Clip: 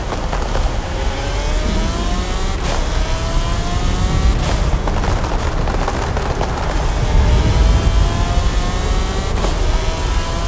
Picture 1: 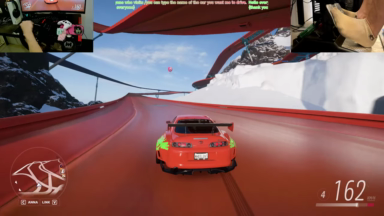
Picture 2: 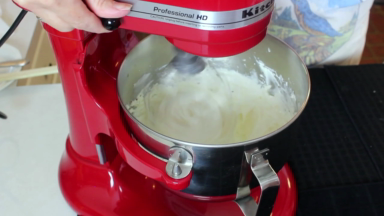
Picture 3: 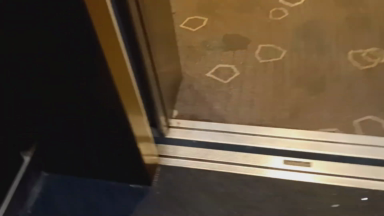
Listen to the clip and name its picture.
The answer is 1